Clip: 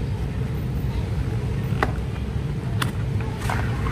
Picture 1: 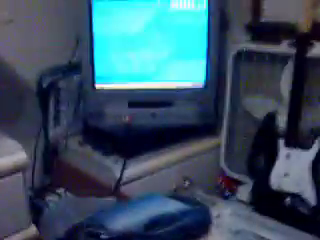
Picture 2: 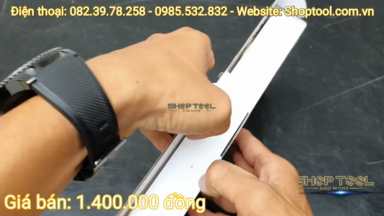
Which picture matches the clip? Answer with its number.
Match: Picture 2